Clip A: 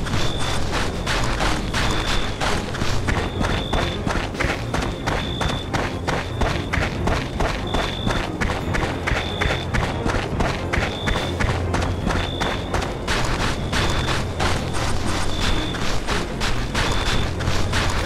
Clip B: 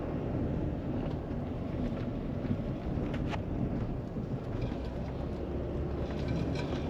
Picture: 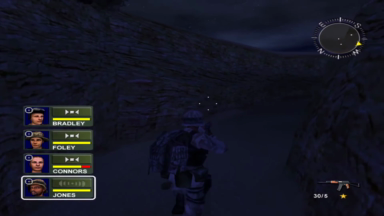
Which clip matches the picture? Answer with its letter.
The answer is A